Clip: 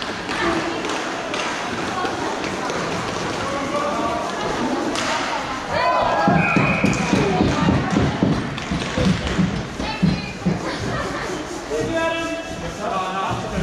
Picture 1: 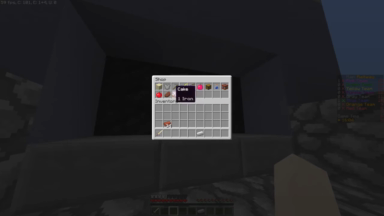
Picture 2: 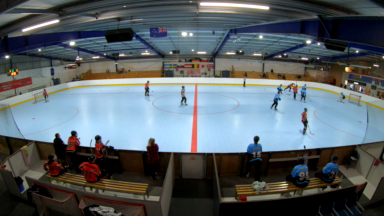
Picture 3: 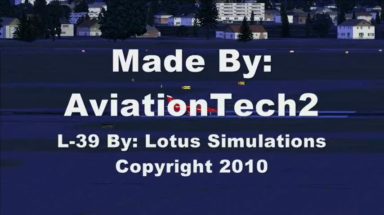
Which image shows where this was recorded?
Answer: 2